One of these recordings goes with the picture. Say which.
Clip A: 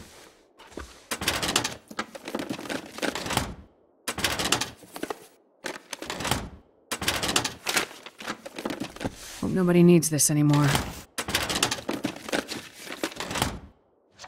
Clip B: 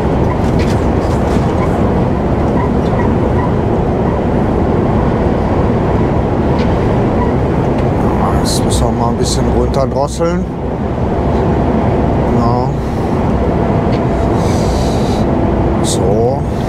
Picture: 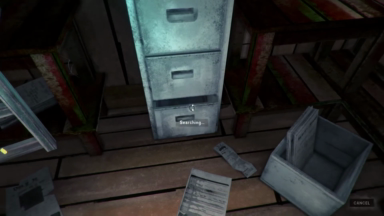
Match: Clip A